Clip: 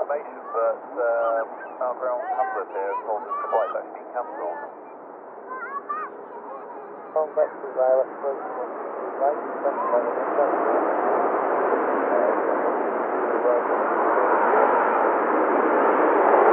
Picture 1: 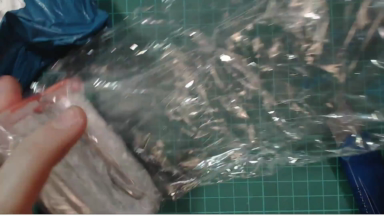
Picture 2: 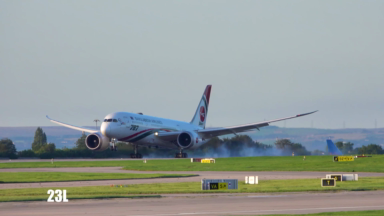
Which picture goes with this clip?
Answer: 2